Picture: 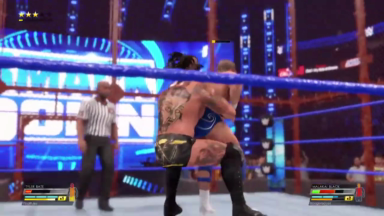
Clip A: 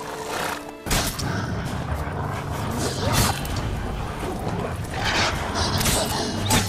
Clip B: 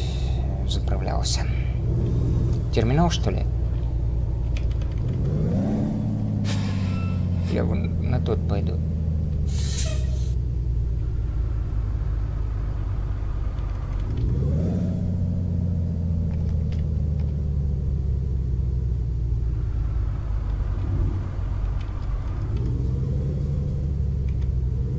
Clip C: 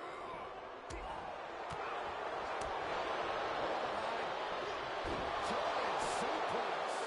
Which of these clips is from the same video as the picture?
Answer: C